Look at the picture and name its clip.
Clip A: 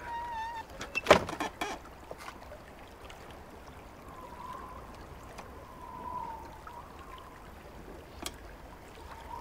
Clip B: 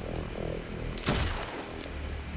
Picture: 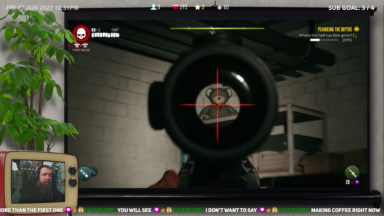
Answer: B